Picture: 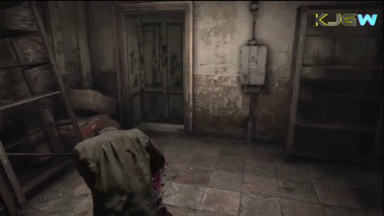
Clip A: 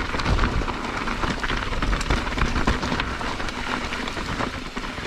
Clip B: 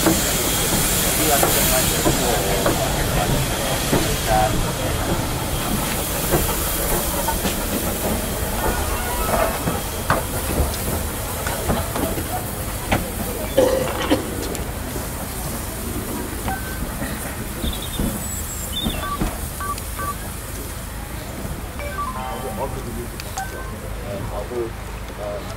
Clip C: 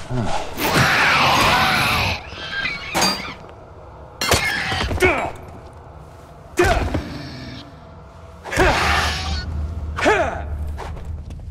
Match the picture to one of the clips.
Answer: C